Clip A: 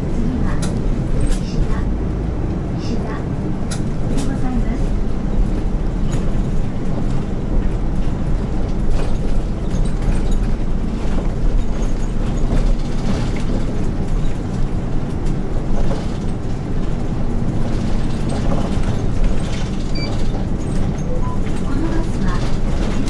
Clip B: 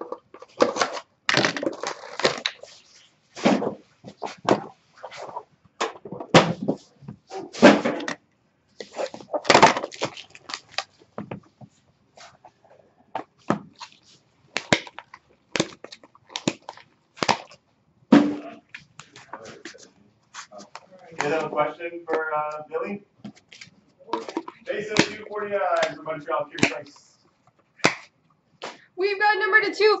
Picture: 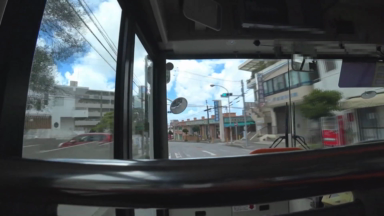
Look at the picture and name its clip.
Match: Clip A